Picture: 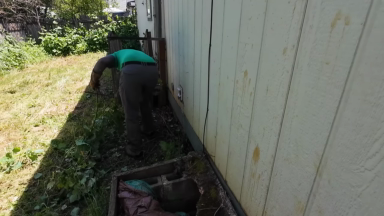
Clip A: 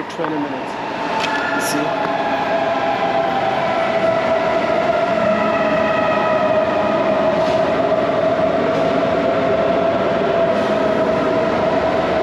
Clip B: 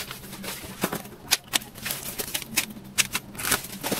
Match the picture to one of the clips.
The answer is B